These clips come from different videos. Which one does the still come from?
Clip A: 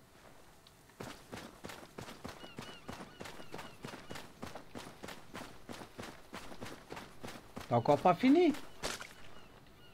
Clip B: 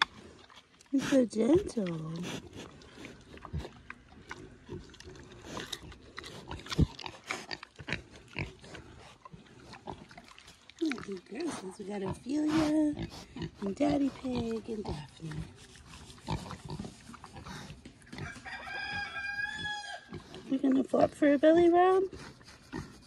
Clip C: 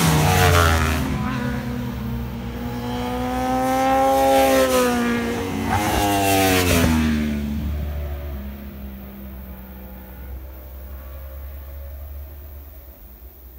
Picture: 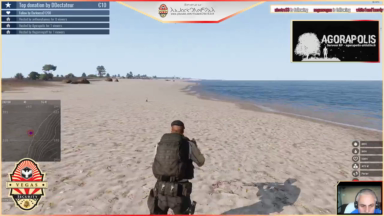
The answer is A